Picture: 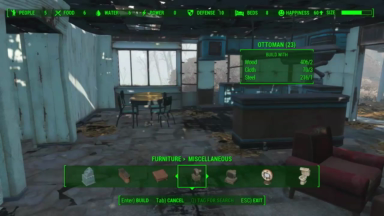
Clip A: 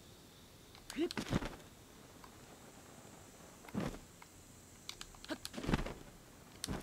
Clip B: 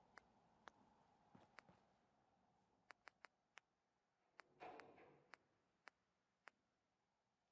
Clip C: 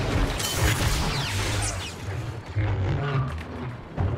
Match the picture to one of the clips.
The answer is B